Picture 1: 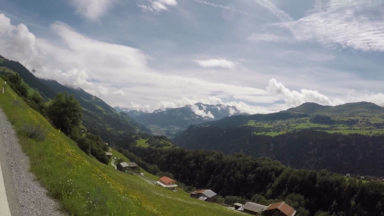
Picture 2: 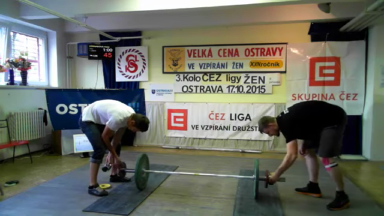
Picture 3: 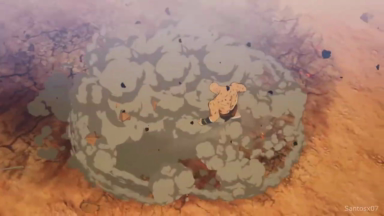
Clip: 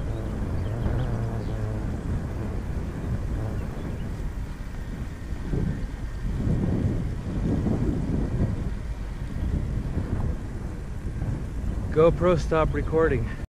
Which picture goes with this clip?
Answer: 1